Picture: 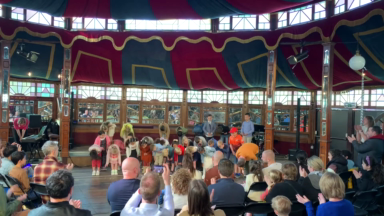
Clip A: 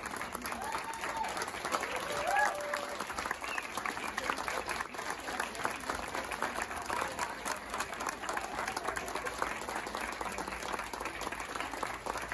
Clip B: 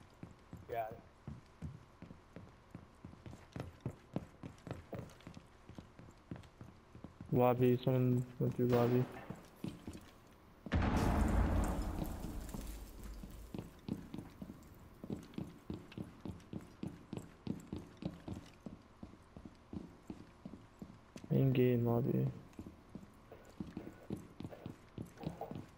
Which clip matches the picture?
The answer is A